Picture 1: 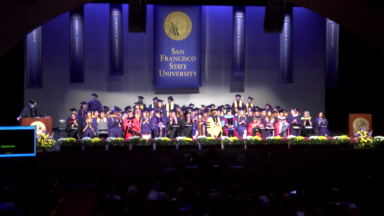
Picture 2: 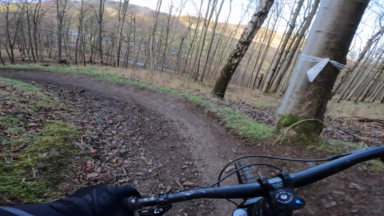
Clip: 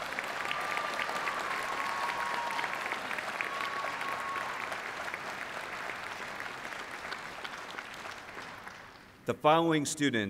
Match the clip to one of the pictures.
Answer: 1